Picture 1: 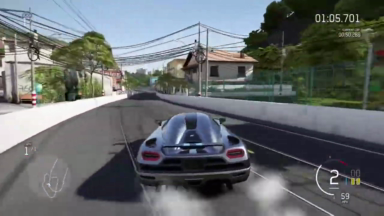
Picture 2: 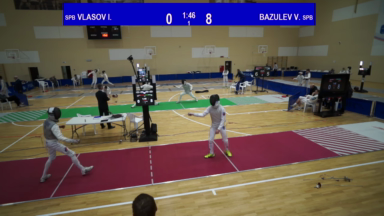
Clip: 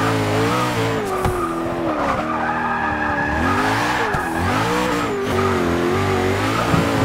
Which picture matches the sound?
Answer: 1